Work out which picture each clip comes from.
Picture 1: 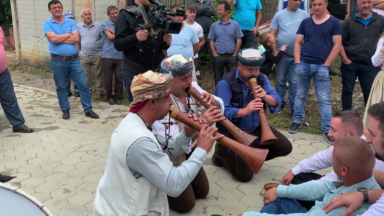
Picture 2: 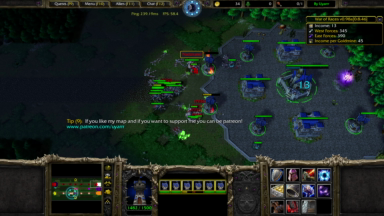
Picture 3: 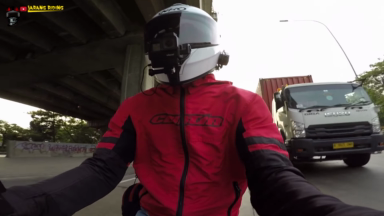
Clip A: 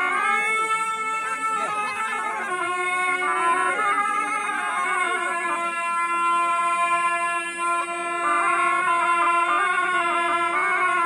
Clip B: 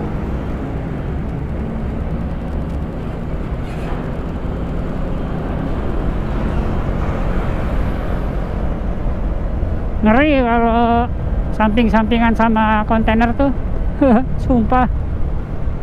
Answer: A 1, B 3